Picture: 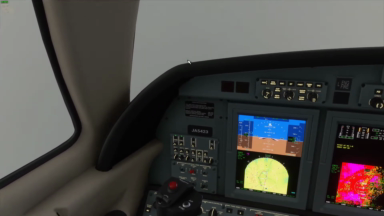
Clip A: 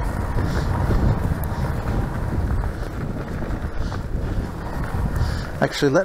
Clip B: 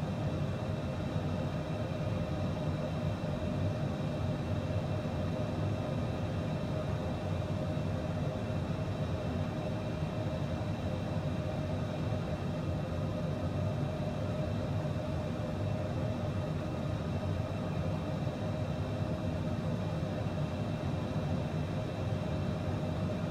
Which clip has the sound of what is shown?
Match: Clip B